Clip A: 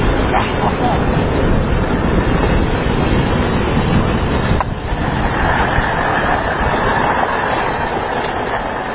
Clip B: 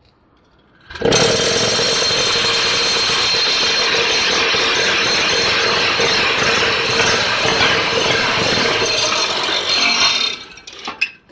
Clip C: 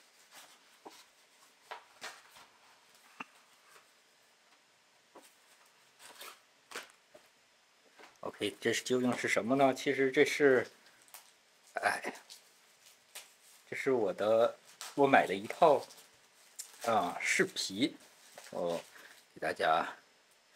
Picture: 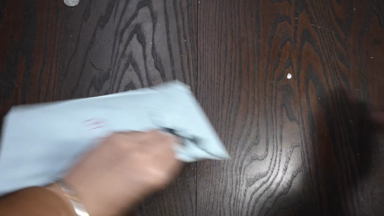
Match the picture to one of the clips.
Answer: C